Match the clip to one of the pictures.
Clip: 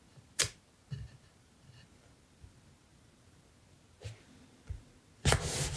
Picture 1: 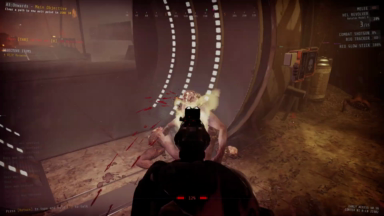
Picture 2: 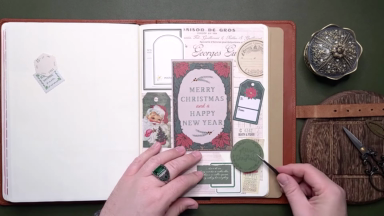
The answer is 2